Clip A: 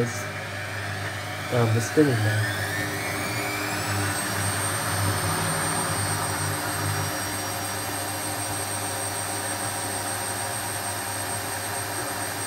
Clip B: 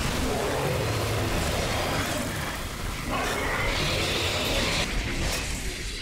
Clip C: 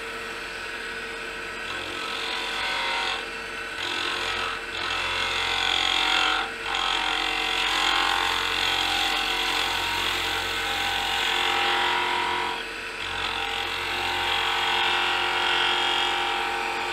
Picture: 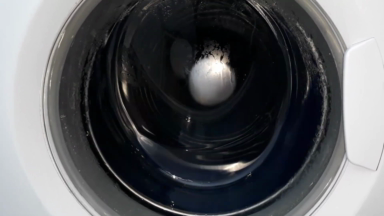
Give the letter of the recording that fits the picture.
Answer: A